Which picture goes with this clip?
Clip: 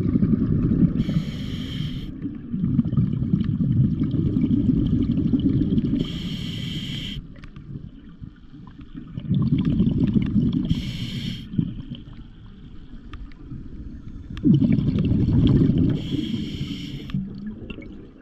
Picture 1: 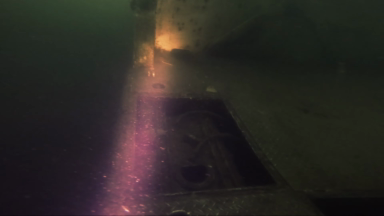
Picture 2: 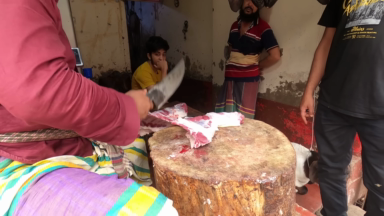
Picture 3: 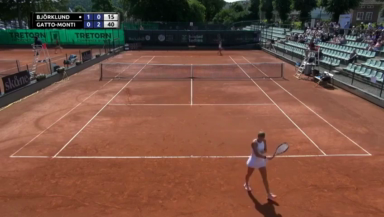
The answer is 1